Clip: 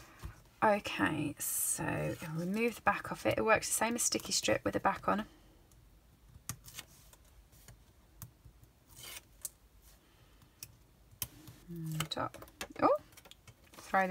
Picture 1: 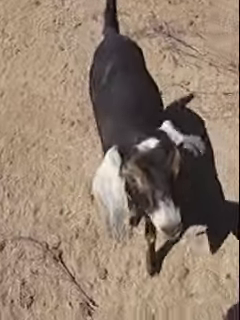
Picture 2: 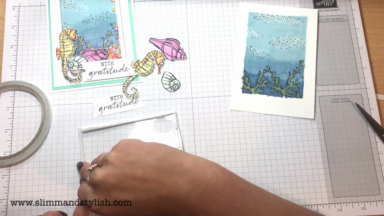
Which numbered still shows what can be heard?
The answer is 2